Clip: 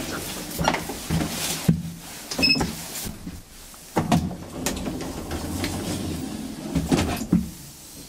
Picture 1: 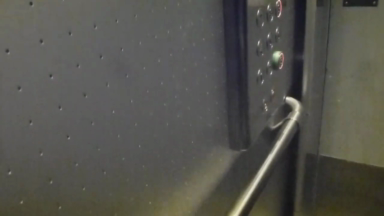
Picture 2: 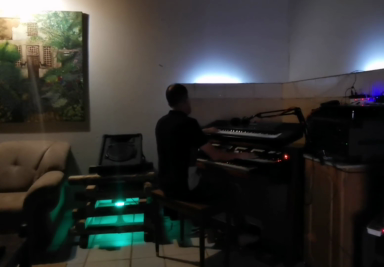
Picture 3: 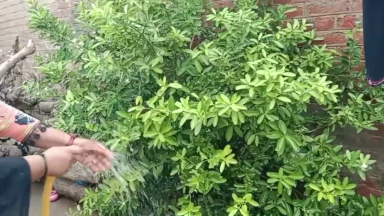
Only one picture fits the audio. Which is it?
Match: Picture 1